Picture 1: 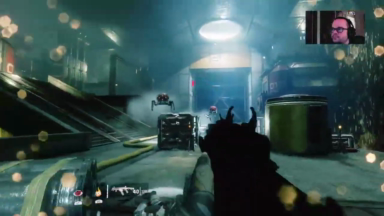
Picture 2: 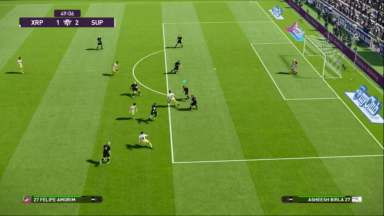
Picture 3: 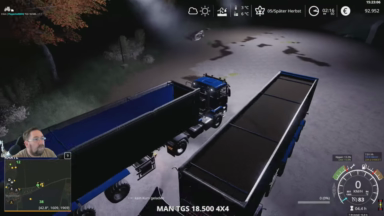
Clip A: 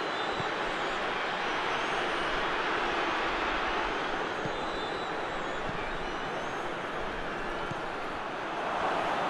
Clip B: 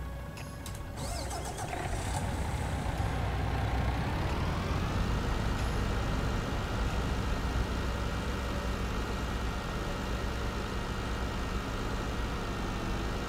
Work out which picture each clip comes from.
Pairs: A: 2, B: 3